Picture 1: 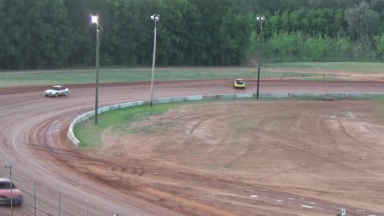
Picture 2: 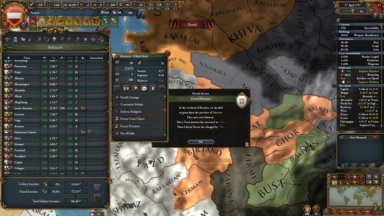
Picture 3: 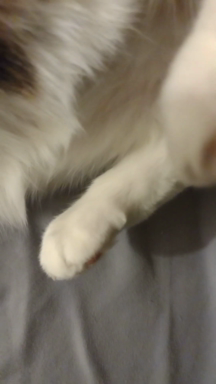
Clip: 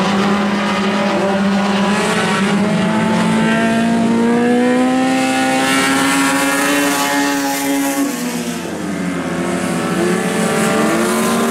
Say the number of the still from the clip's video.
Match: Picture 1